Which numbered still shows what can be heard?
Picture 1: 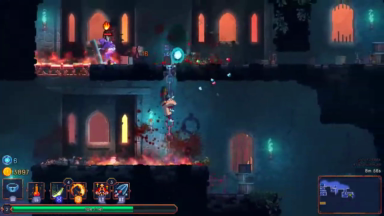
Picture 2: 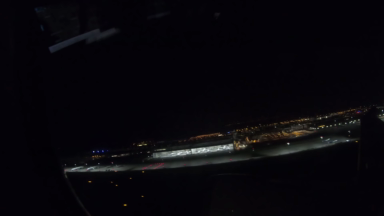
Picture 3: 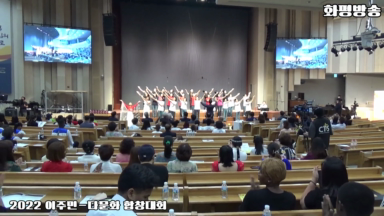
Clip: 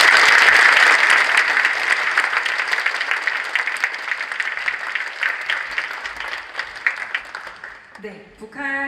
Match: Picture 3